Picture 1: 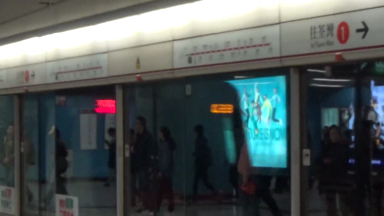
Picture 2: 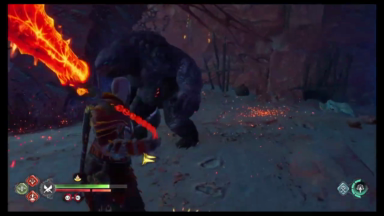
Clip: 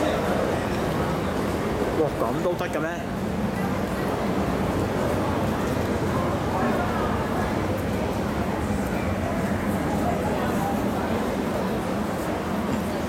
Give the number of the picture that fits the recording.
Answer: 1